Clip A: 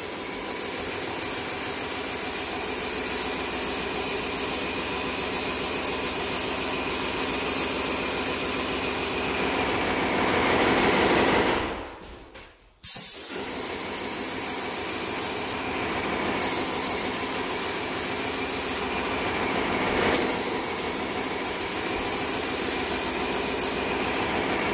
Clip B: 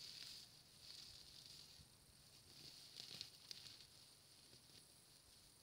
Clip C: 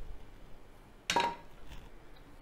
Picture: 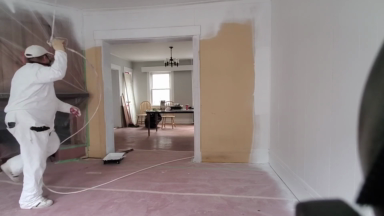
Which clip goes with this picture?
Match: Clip A